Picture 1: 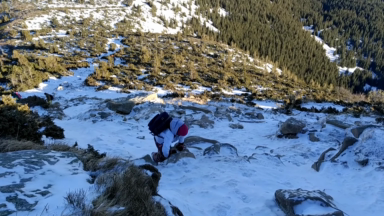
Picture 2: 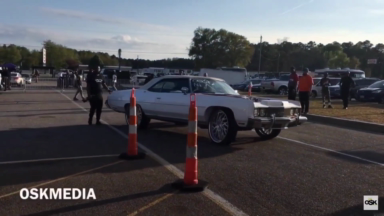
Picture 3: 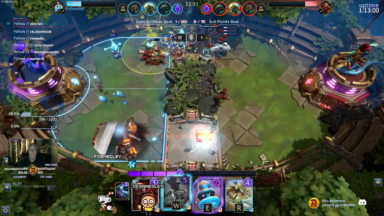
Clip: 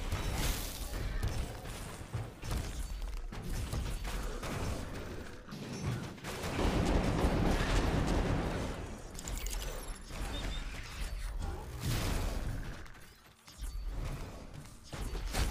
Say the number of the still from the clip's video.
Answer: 3